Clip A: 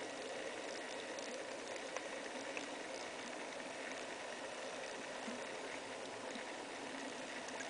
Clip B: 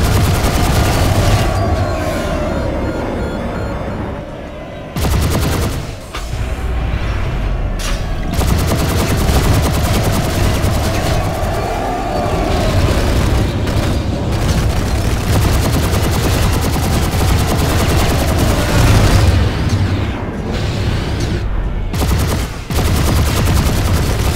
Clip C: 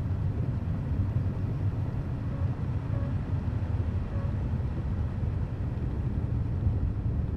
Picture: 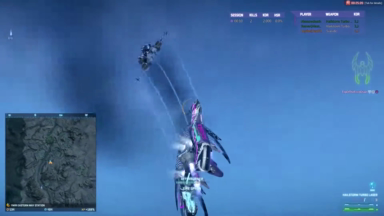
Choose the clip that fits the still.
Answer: B